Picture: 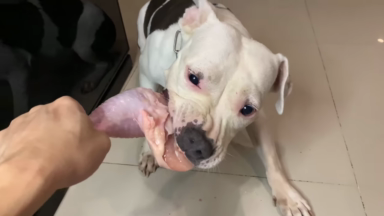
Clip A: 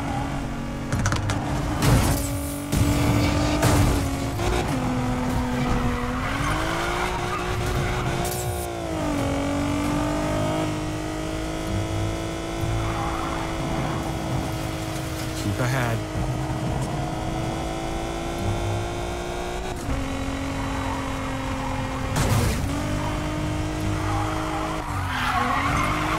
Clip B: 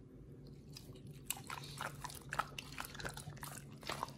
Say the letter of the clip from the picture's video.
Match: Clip B